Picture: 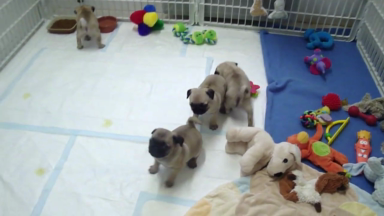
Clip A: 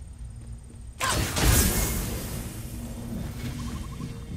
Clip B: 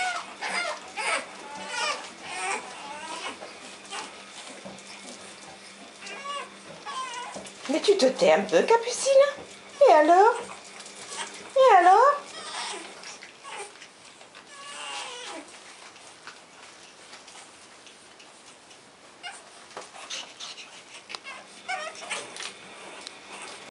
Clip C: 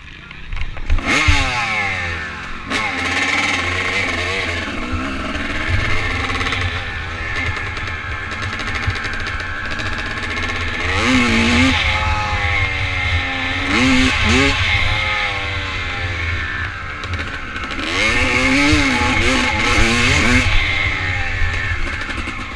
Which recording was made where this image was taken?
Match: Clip B